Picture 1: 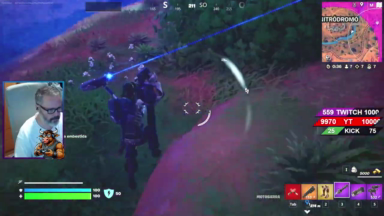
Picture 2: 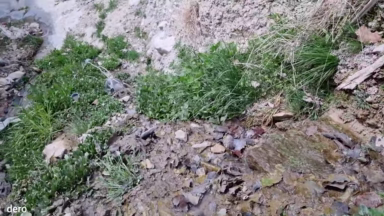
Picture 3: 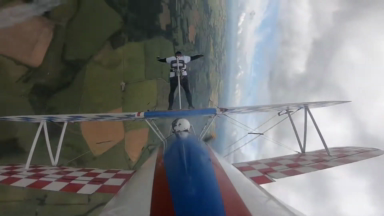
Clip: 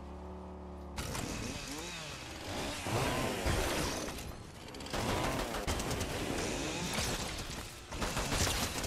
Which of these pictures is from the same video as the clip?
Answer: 1